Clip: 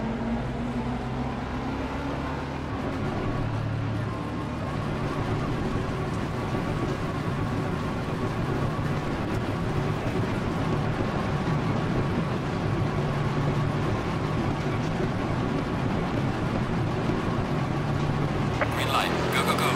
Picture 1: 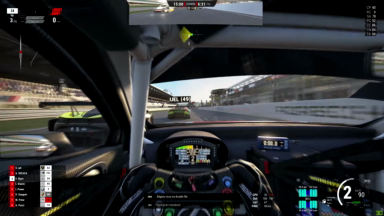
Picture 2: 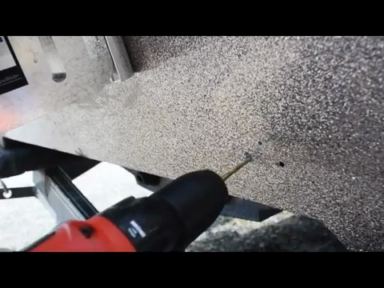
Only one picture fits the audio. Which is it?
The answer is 1